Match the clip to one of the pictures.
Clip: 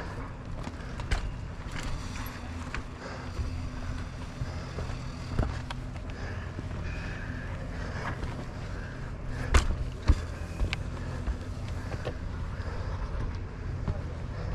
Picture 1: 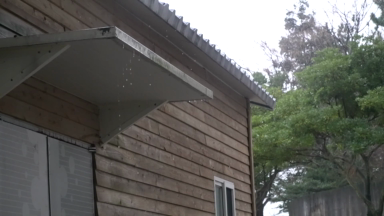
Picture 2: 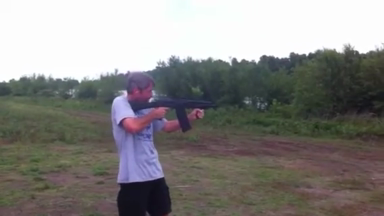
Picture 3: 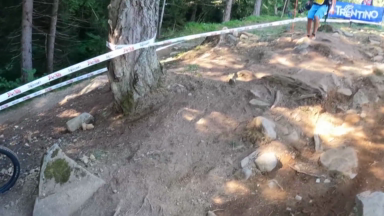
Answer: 3